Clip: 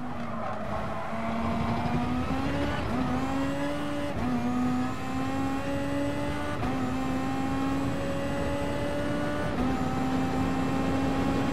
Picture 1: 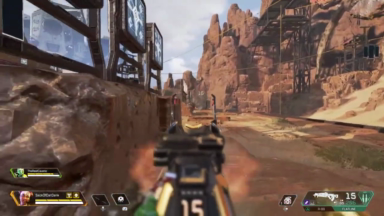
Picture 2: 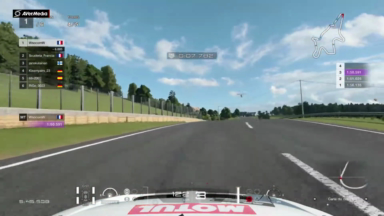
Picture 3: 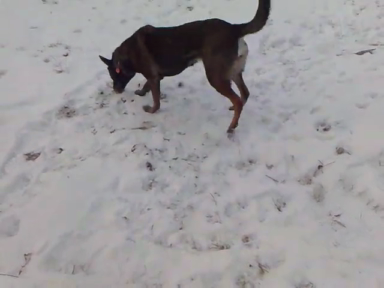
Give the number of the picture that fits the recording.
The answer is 2